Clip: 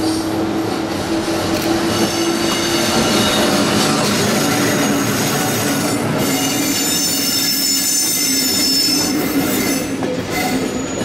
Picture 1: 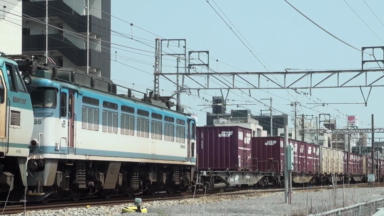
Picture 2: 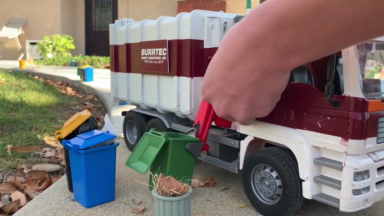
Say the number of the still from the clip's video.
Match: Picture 1